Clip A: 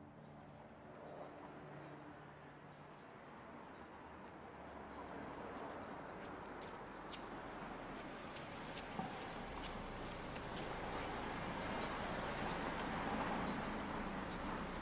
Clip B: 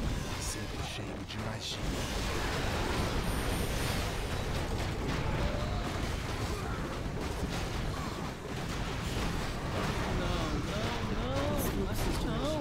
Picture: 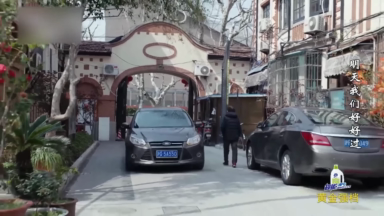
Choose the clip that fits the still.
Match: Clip A